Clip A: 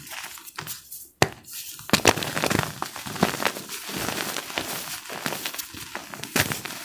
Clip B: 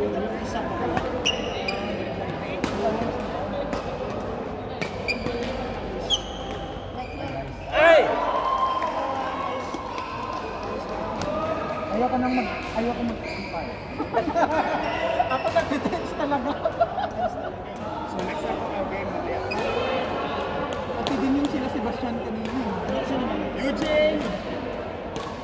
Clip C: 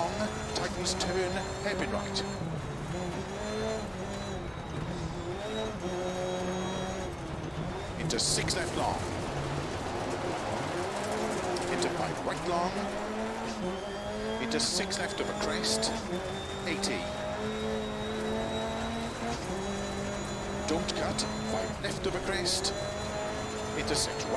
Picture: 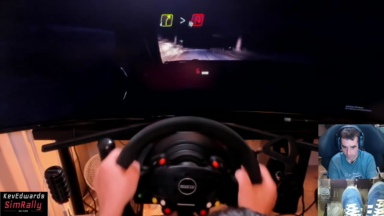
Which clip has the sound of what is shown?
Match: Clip C